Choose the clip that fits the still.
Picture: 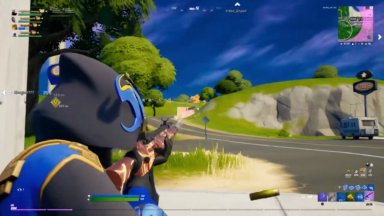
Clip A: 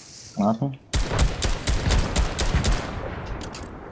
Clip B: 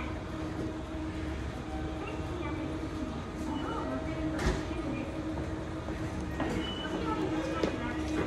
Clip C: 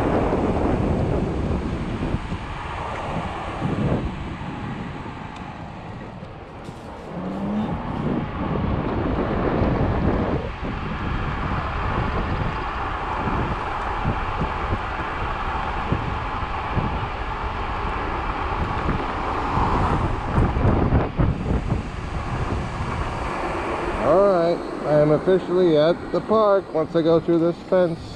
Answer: A